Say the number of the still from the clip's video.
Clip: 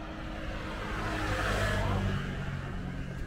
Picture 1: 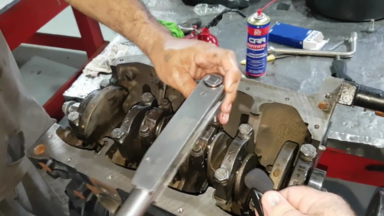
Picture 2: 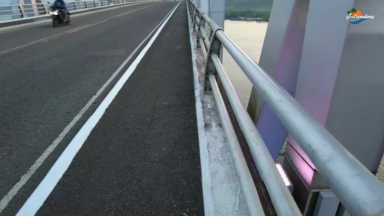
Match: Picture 2